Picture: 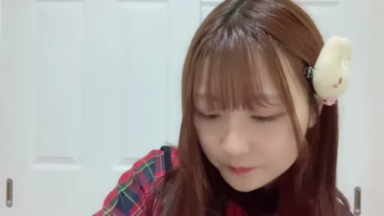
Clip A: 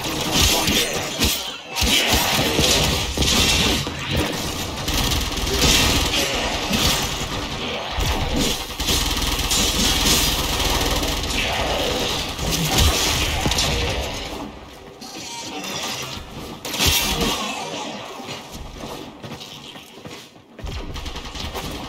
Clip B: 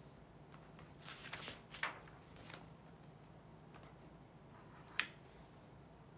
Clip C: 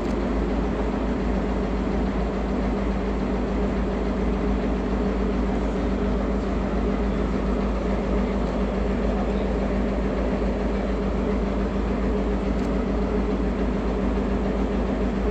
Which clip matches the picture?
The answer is B